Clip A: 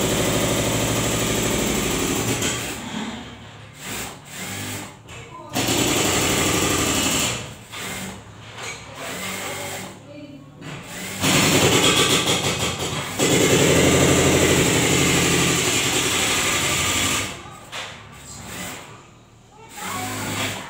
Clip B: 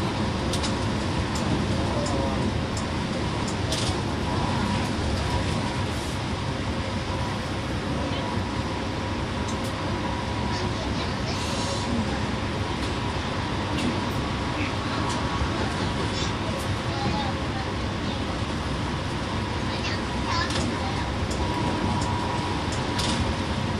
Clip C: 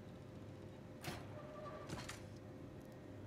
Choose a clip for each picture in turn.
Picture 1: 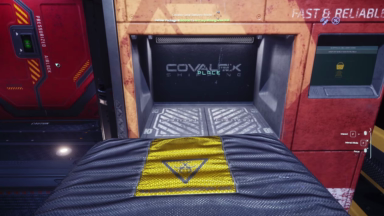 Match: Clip C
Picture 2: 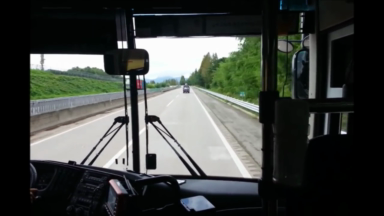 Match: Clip B